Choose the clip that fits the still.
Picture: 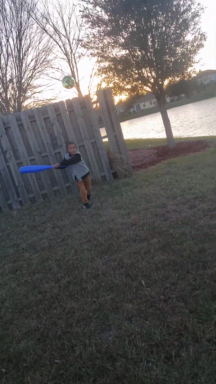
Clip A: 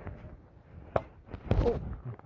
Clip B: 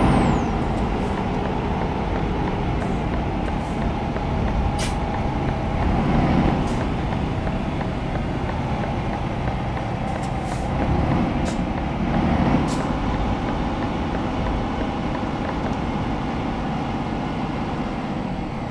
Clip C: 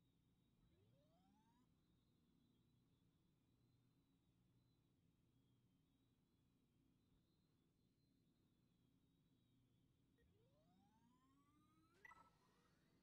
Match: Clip A